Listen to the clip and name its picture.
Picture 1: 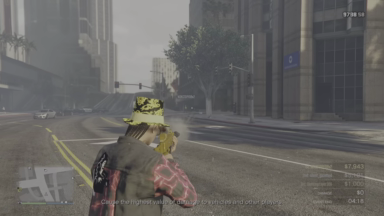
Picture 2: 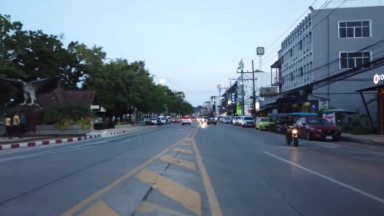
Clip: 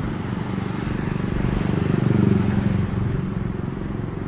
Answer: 2